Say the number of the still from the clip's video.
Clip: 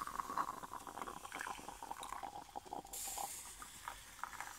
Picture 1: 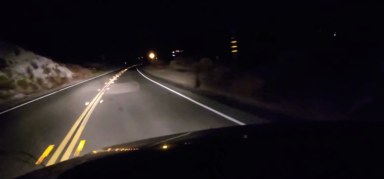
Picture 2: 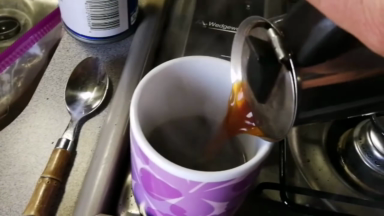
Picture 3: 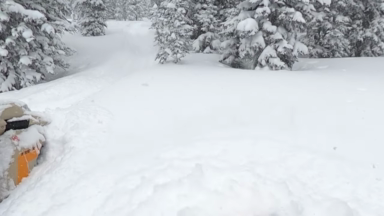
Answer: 2